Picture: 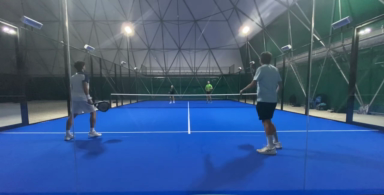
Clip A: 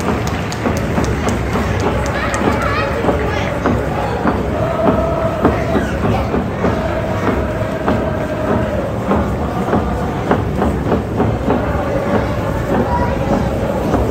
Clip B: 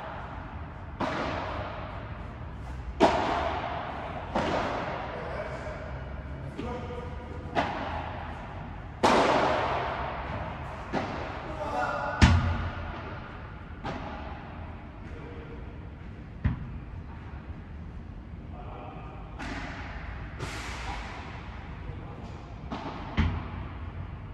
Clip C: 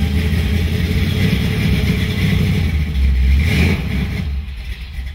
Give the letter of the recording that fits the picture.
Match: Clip B